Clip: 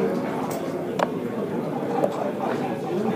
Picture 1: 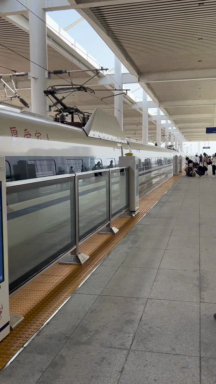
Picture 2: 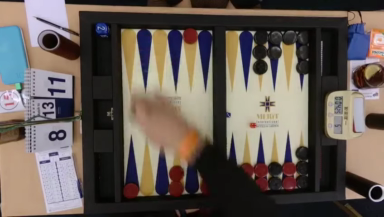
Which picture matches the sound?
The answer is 2